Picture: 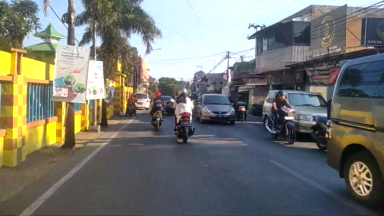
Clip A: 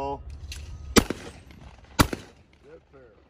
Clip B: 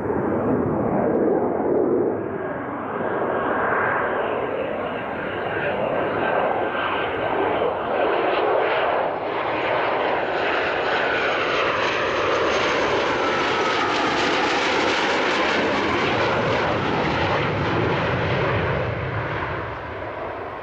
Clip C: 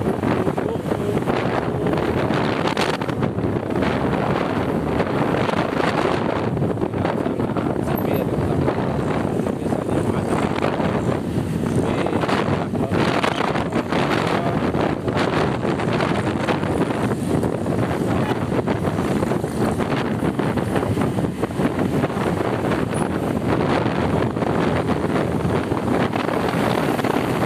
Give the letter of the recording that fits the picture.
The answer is C